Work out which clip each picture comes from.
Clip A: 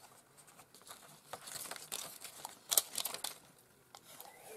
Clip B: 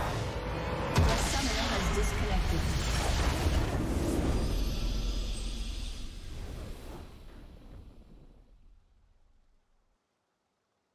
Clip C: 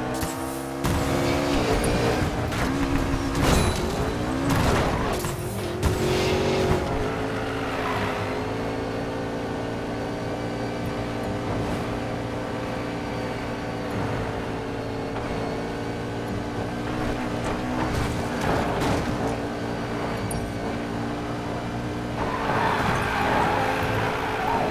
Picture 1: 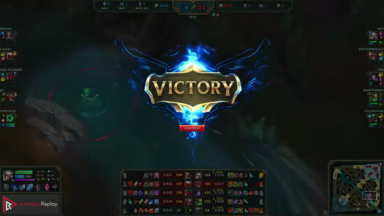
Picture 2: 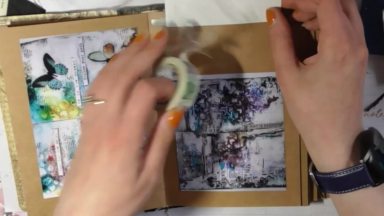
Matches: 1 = B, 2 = A